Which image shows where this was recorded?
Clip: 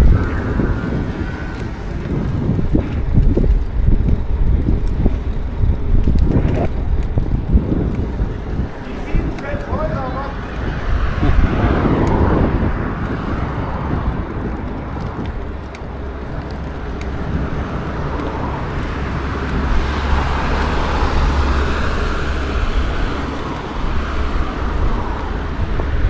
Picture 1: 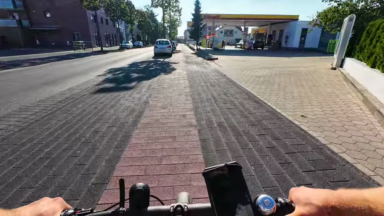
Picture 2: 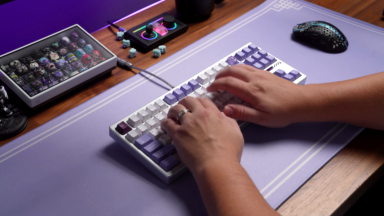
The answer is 1